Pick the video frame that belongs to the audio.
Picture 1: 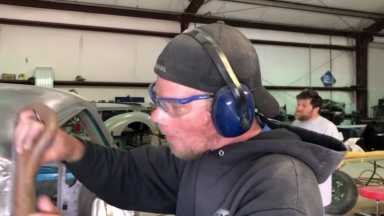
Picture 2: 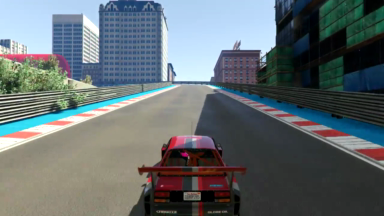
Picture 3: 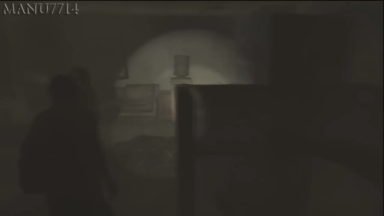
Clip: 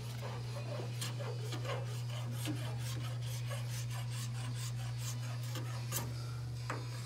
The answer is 1